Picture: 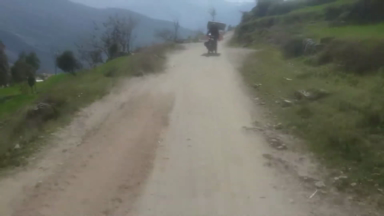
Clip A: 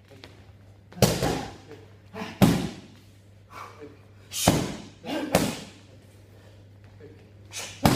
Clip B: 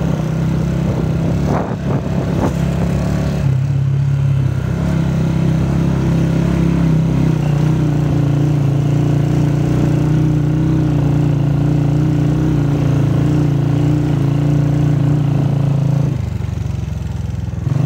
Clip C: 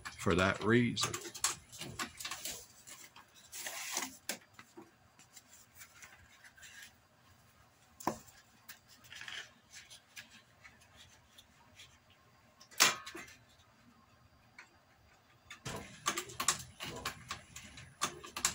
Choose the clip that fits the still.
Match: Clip B